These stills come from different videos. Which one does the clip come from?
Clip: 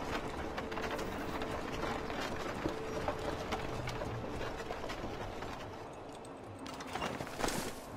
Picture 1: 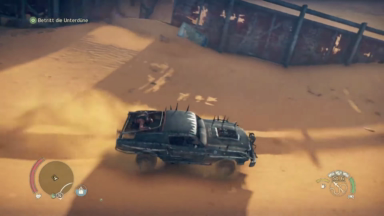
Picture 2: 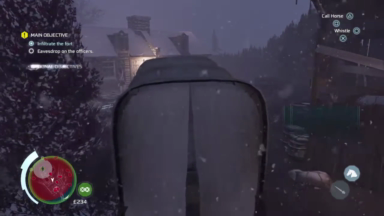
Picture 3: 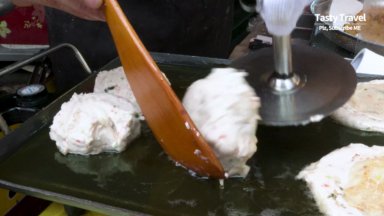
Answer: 2